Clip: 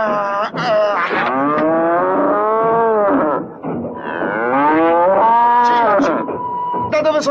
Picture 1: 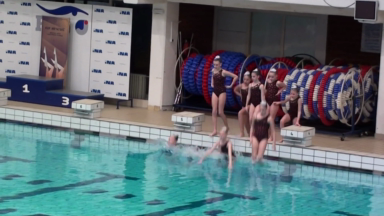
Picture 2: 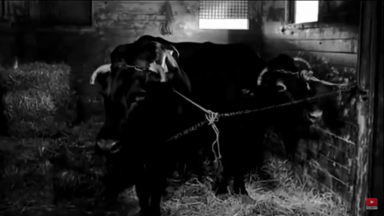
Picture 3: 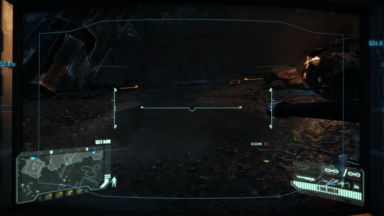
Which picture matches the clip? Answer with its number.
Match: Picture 2